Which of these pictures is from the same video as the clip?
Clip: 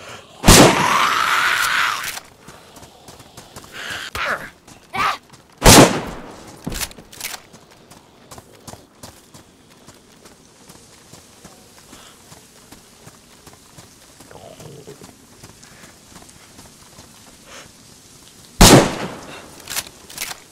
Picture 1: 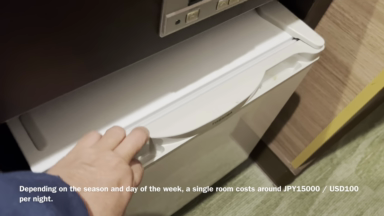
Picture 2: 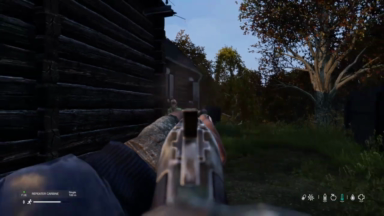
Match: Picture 2